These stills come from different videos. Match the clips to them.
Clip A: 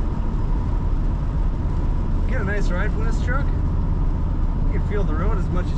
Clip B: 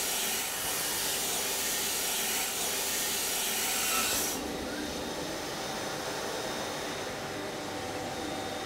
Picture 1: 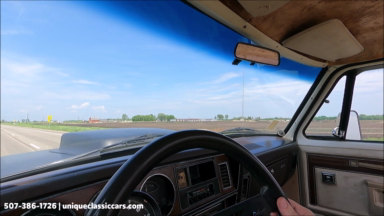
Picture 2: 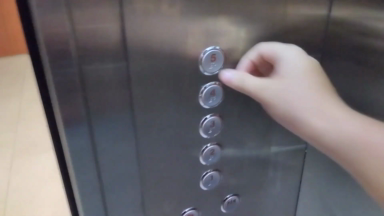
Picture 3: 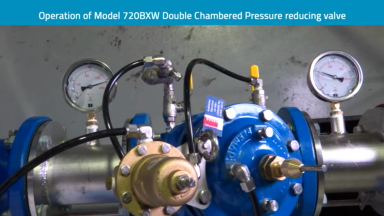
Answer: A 1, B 3